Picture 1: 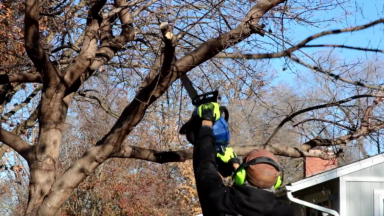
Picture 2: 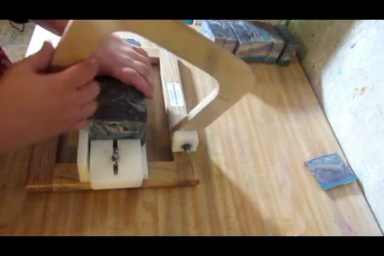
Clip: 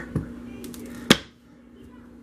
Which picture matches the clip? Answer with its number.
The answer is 2